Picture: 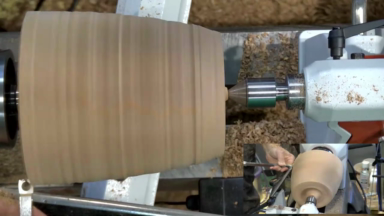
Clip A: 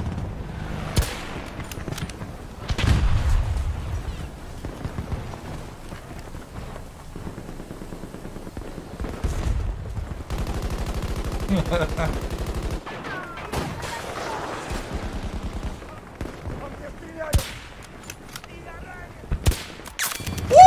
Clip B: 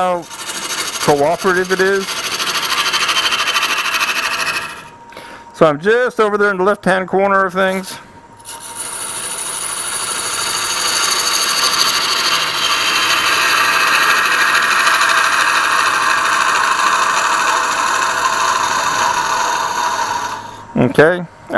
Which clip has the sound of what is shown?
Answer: B